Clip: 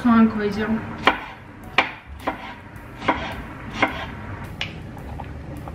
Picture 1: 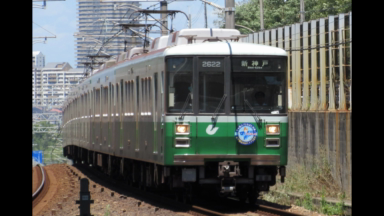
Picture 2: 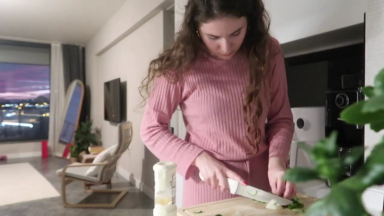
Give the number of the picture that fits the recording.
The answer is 2